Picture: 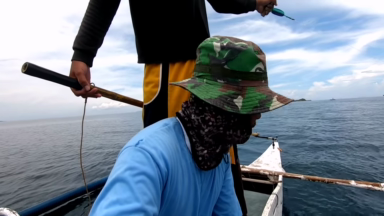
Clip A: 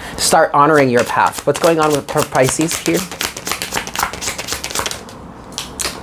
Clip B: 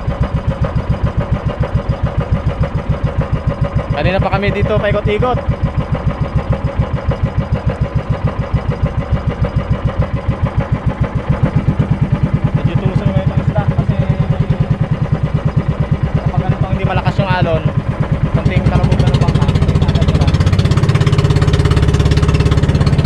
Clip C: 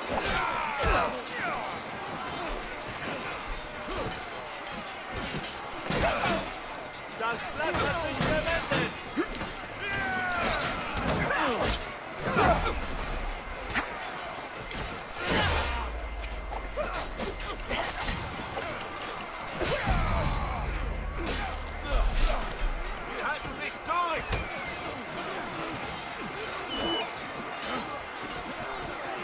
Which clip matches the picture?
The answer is B